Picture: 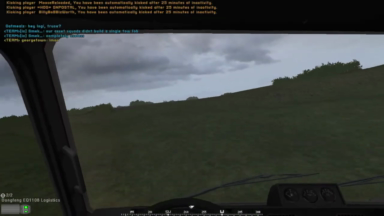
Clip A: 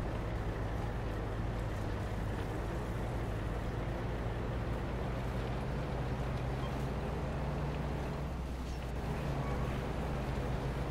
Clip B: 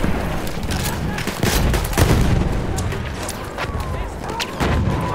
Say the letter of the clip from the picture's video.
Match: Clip A